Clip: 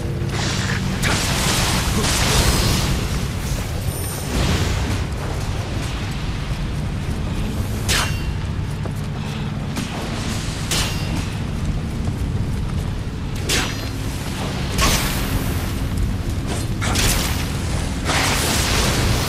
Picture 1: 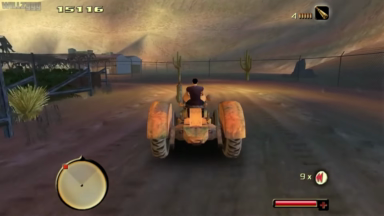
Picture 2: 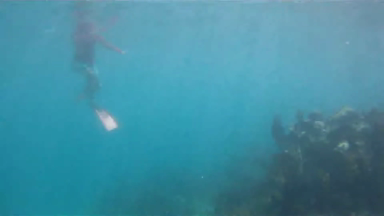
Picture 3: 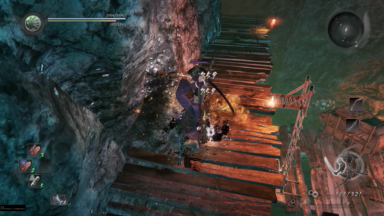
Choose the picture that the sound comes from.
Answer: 3